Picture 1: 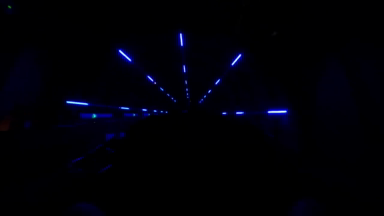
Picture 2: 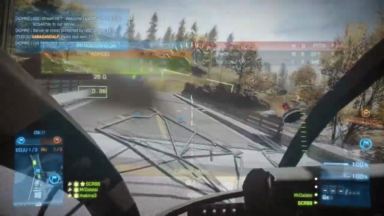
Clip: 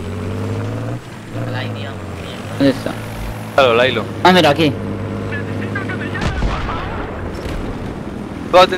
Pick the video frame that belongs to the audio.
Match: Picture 2